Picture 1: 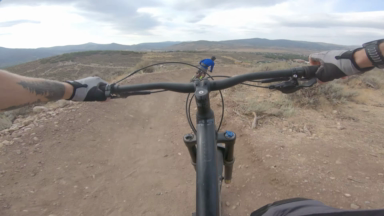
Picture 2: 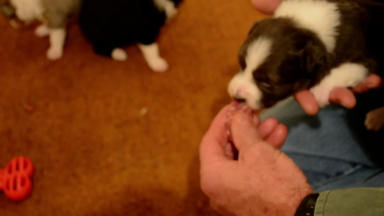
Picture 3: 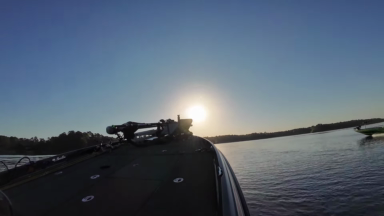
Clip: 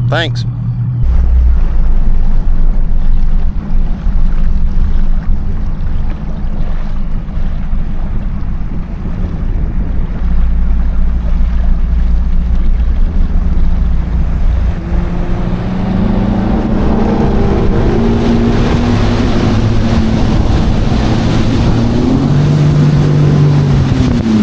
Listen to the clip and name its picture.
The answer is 3